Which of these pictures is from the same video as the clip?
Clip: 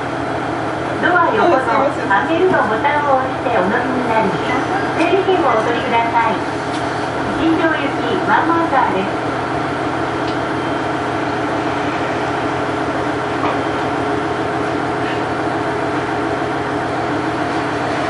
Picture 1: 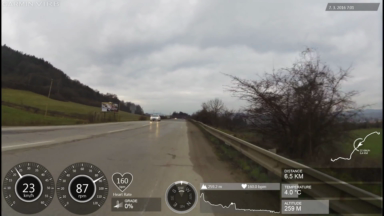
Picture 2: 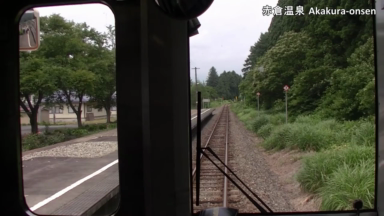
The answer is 2